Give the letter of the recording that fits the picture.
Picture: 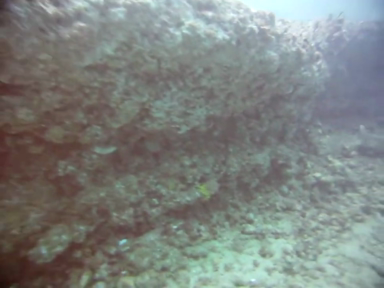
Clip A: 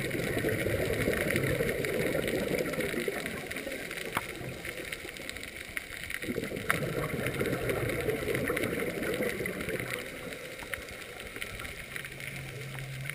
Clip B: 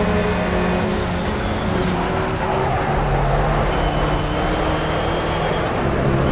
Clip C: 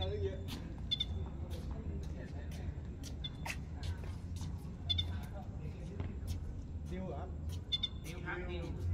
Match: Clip A